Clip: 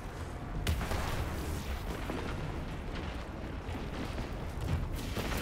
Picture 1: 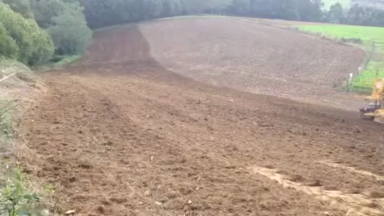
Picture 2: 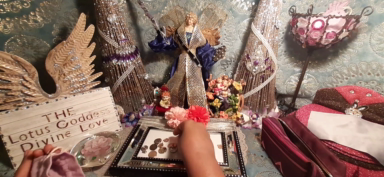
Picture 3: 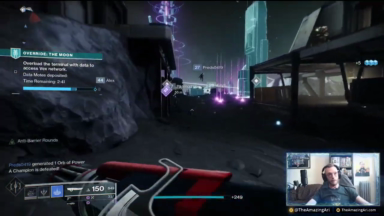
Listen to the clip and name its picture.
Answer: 3